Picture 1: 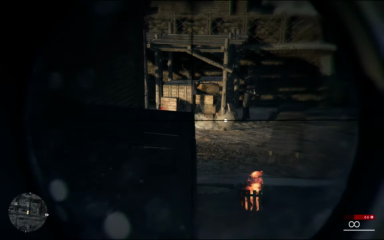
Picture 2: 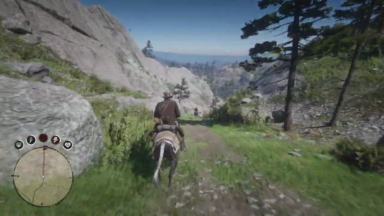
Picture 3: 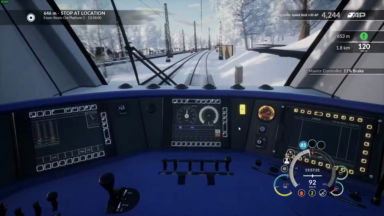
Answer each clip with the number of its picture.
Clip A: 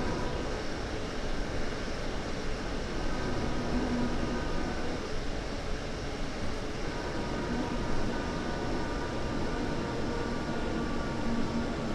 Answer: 3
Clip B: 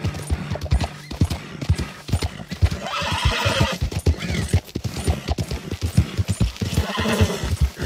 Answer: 2